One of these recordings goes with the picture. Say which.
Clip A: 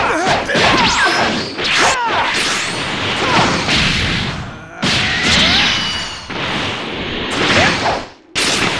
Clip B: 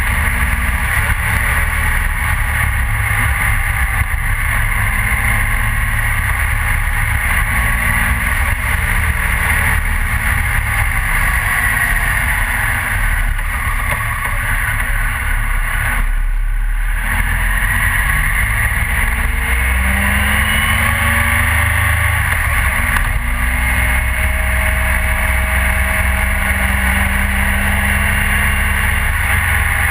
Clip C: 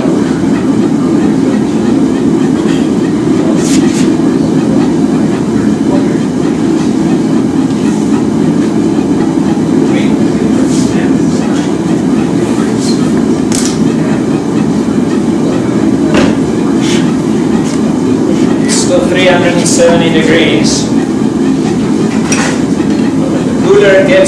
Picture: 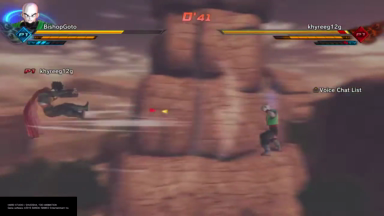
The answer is A